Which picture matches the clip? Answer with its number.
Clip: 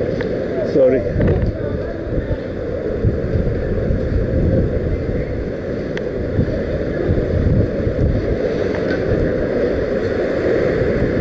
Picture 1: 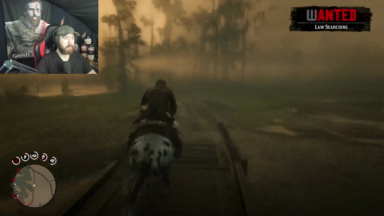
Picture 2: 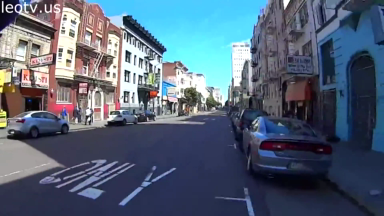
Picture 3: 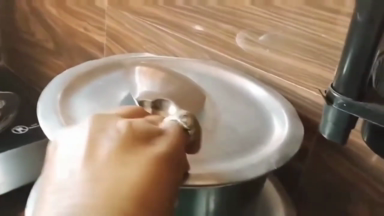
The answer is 2